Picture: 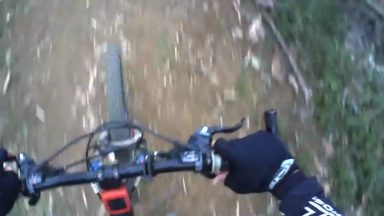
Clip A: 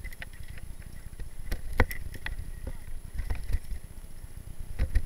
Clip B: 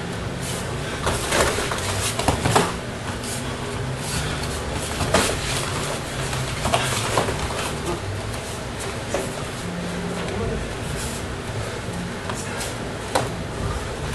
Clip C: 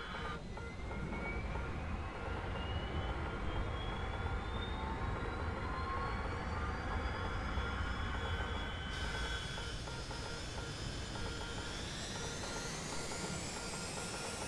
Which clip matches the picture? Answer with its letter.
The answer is A